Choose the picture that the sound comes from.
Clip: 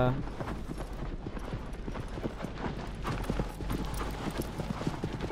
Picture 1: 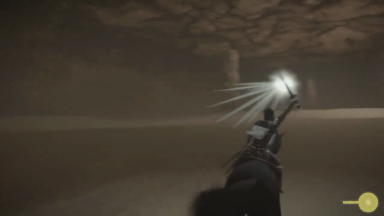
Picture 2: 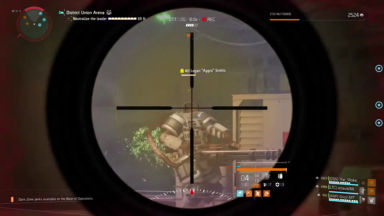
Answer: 1